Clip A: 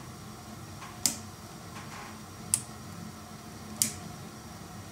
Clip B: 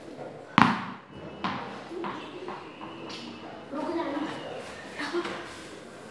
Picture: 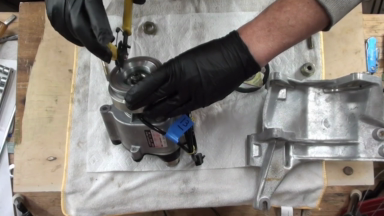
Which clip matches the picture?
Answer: A